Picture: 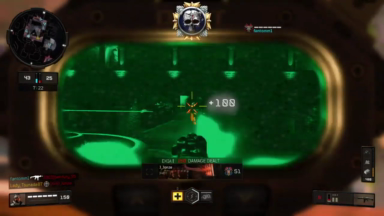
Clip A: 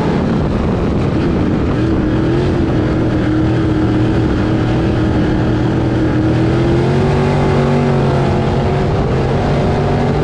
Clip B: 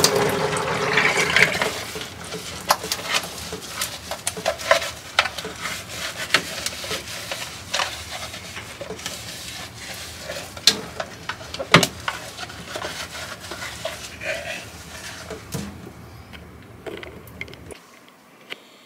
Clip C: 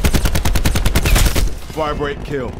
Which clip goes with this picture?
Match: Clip C